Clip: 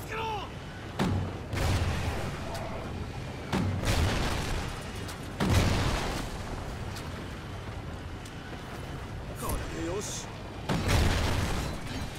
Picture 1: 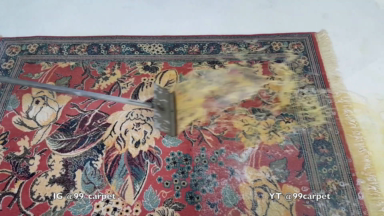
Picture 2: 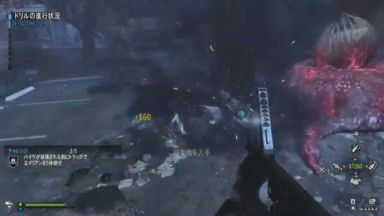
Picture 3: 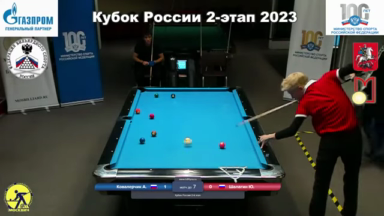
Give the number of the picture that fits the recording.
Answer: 2